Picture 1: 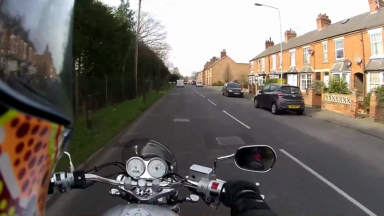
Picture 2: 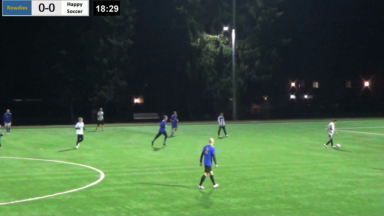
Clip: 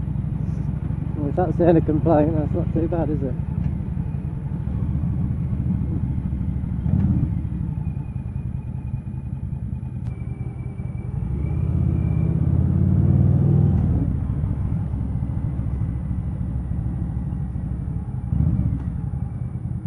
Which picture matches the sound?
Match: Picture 1